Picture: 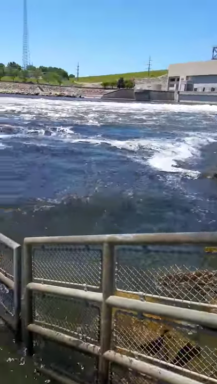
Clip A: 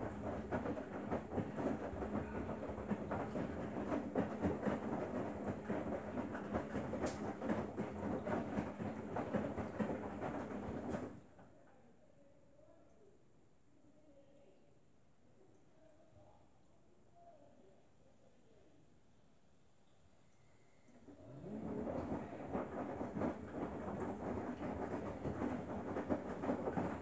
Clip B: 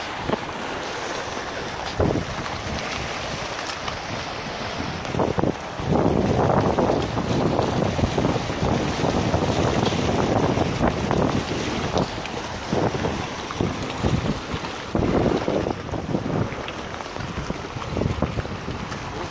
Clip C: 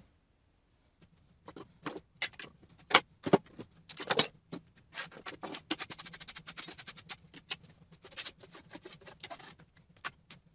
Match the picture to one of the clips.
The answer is B